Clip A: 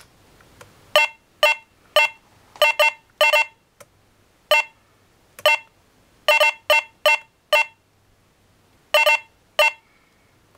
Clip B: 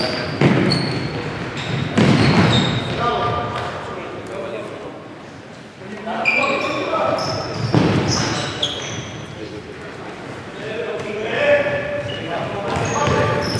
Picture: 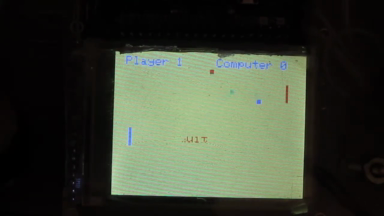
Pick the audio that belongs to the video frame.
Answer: A